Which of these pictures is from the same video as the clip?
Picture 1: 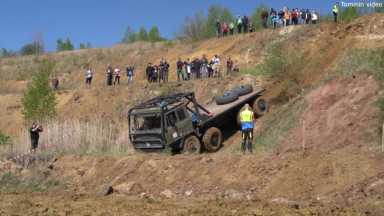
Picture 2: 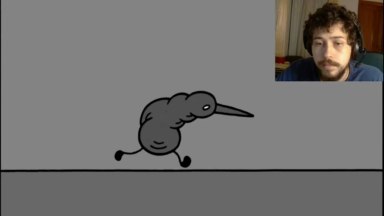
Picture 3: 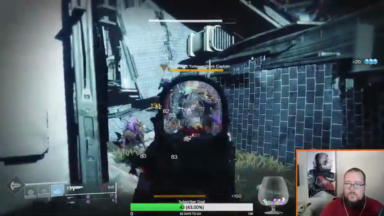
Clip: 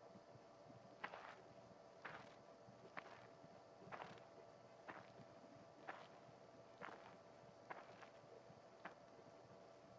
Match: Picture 2